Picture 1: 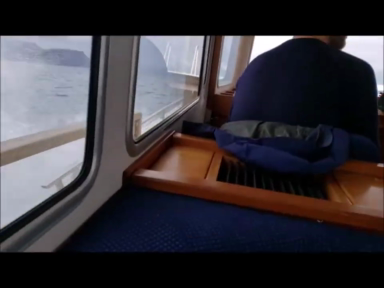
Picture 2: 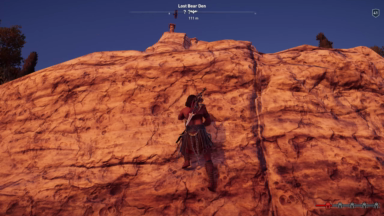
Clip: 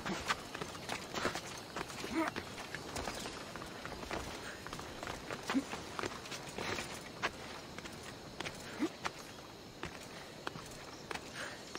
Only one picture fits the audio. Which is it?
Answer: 2